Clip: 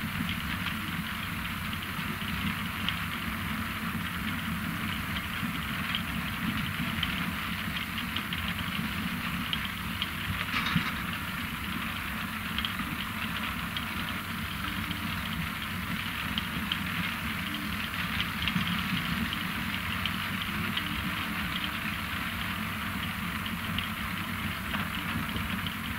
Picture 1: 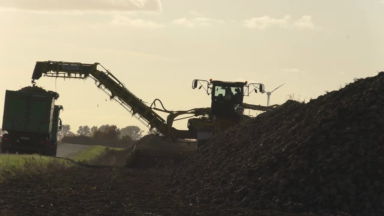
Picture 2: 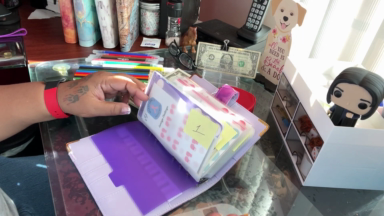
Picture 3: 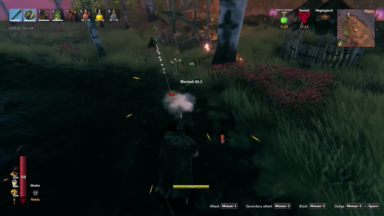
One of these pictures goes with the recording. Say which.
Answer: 1